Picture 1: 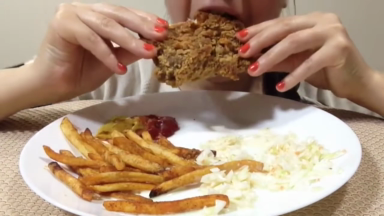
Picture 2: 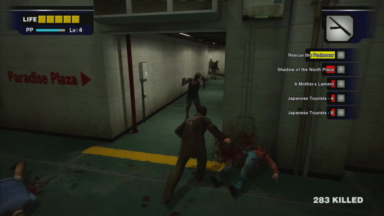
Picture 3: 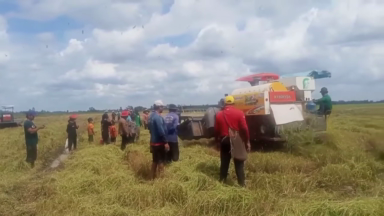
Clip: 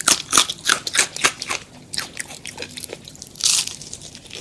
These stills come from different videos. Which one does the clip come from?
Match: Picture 1